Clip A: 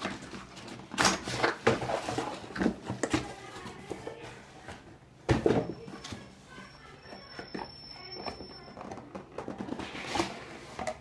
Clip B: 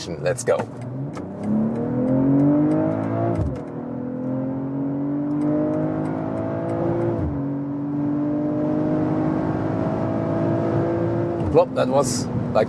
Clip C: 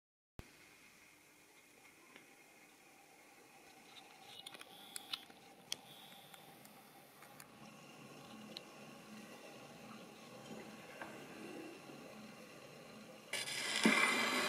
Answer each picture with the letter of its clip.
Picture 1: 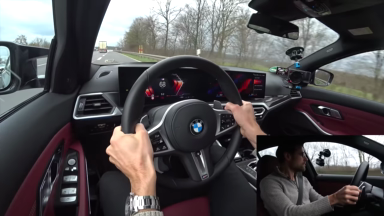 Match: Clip B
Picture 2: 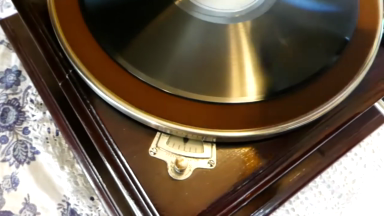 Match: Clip C